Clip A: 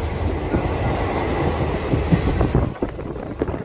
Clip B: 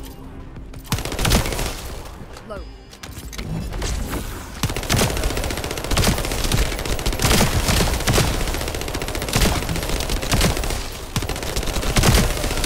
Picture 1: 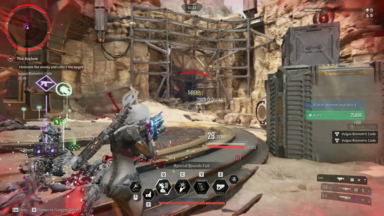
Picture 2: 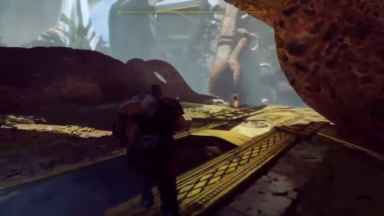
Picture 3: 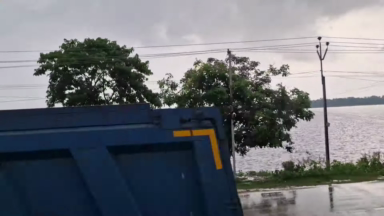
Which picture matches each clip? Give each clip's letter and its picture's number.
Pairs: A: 3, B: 1